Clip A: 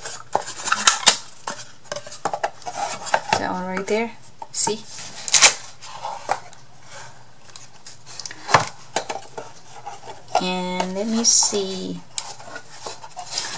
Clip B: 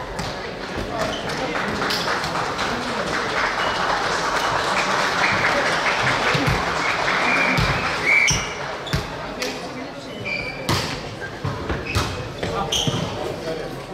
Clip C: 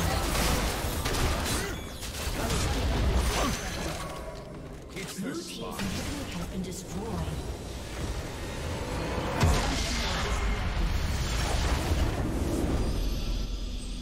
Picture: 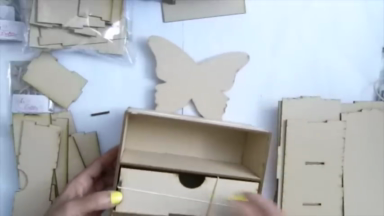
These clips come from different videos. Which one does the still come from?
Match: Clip A